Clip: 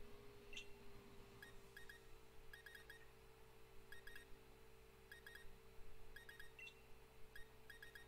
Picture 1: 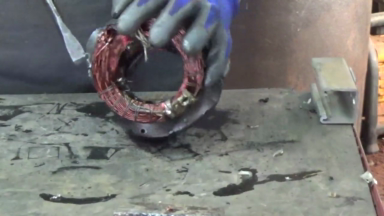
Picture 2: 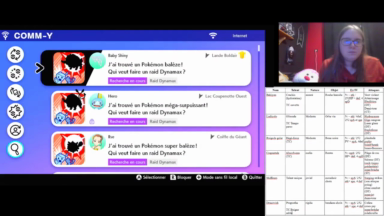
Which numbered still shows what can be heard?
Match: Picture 2